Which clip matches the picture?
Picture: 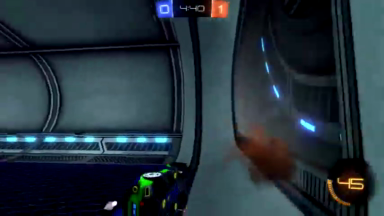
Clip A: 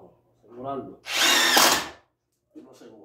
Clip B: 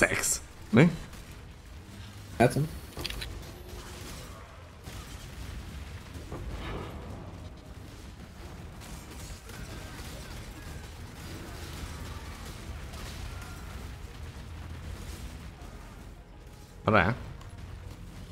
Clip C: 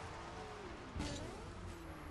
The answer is C